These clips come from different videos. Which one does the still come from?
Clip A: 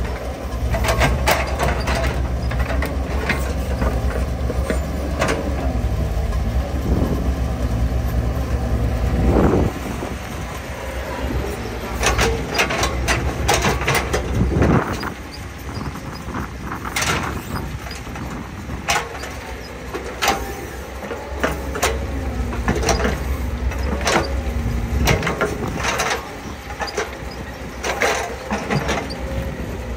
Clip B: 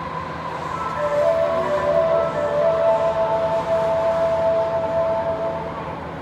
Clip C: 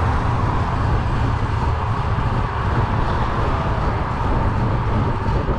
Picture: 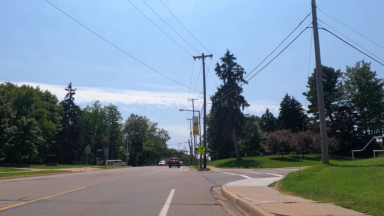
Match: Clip C